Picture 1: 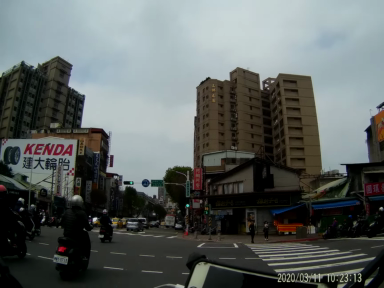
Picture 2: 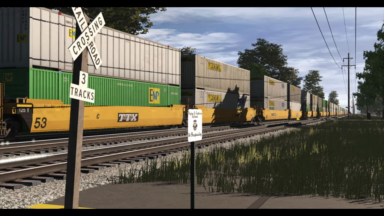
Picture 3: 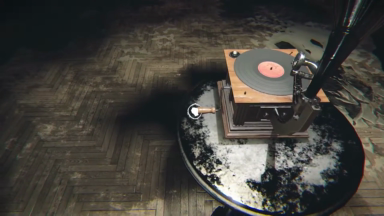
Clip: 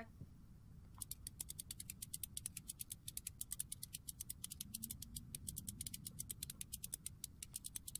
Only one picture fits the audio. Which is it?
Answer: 3